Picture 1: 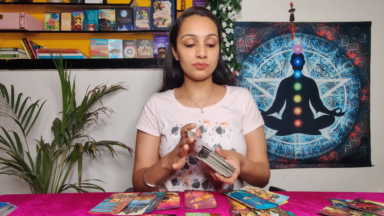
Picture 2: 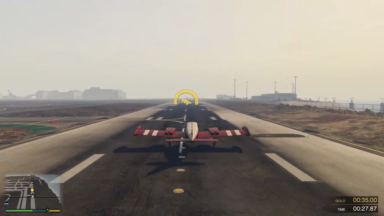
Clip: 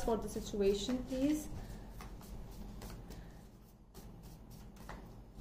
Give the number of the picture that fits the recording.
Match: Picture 1